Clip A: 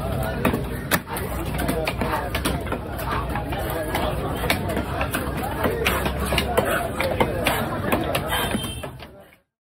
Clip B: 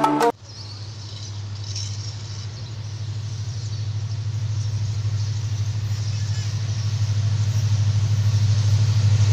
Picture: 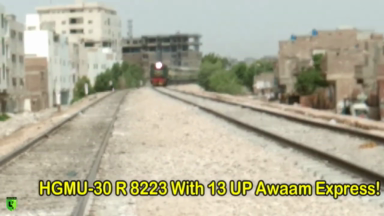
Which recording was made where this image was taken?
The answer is B